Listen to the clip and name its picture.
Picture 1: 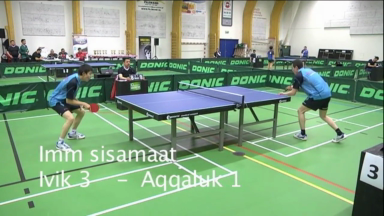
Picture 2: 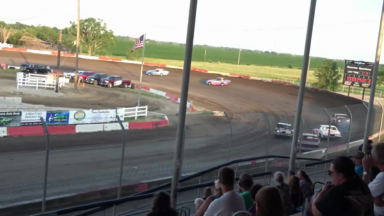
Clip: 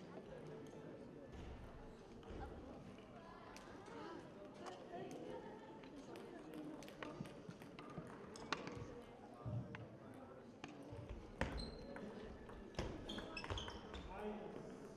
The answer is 1